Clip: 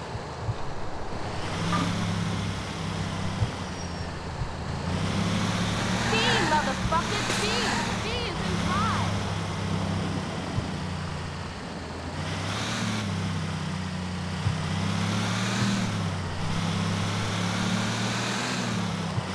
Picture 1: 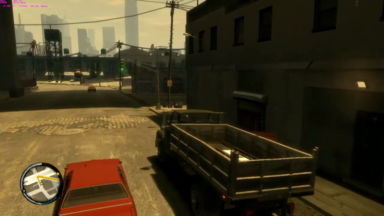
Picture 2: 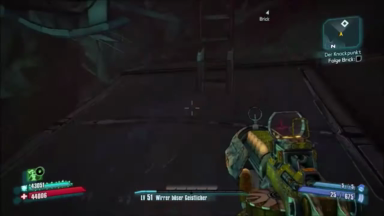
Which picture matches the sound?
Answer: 1